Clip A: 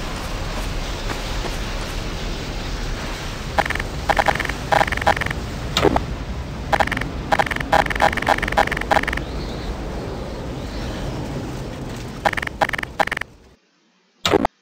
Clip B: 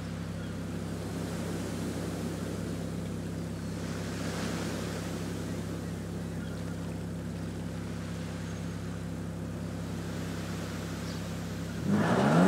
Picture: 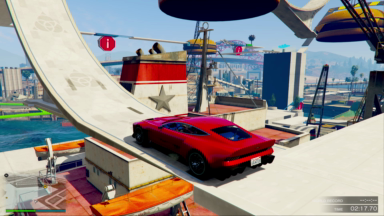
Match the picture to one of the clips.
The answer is B